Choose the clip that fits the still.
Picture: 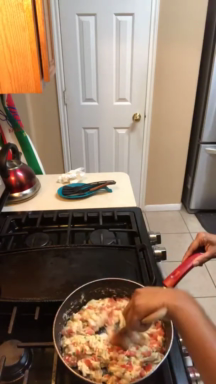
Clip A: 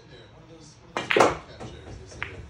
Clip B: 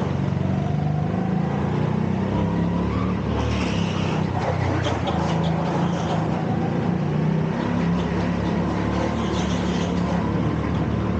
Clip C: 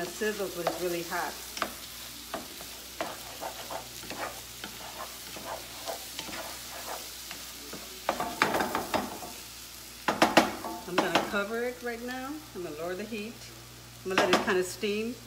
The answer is C